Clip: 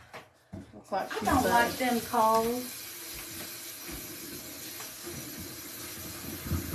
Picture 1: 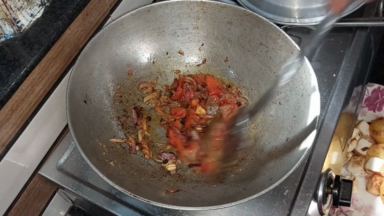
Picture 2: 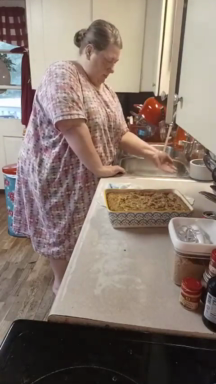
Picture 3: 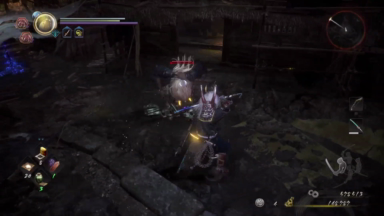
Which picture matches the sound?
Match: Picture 2